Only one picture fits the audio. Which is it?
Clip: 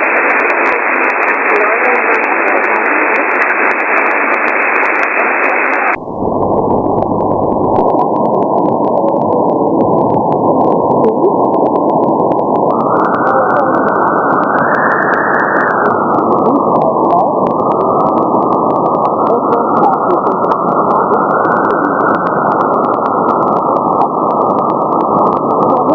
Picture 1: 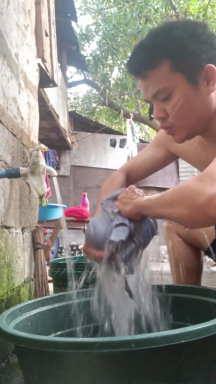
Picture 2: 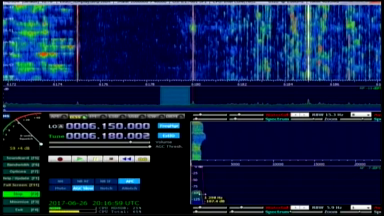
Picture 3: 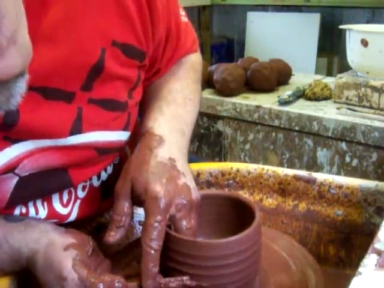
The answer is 2